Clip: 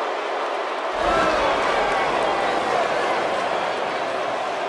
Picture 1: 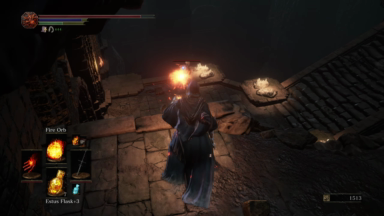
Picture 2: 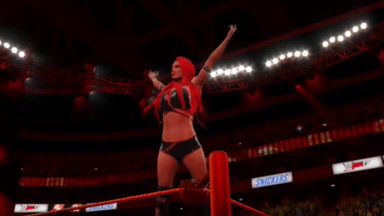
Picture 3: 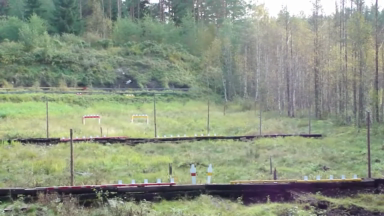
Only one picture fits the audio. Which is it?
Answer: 2